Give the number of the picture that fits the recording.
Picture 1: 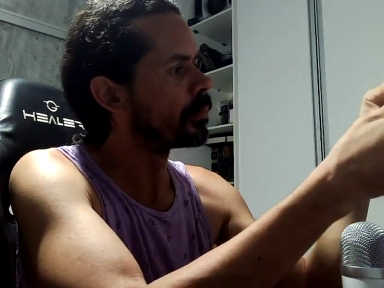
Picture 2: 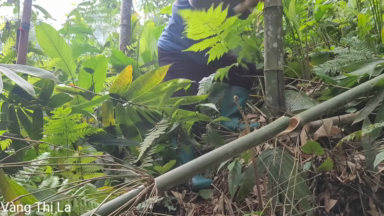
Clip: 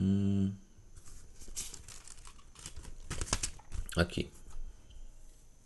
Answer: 1